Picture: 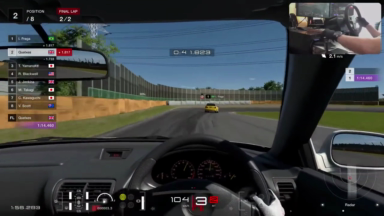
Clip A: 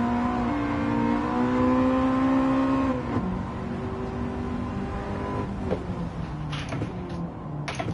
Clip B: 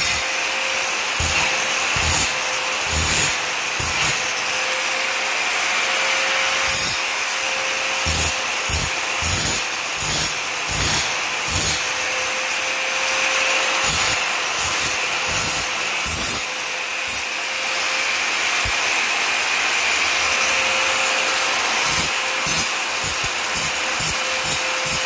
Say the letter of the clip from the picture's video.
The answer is A